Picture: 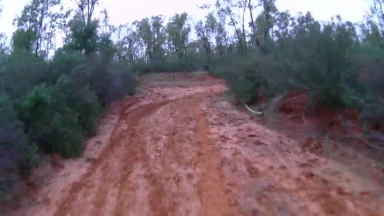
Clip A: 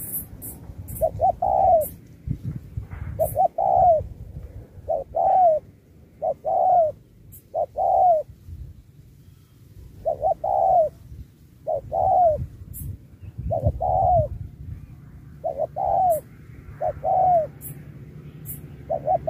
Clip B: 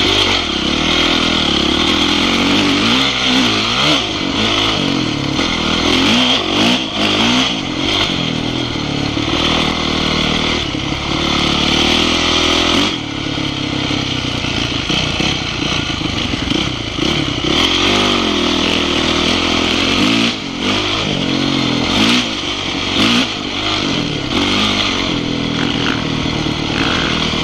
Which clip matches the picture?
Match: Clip B